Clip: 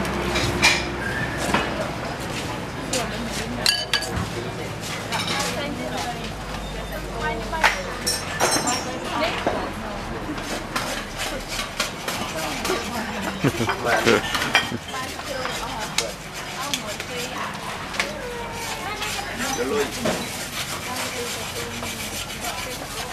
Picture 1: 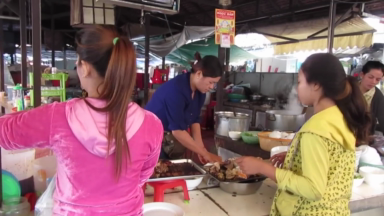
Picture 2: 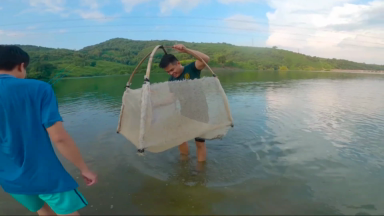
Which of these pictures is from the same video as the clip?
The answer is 1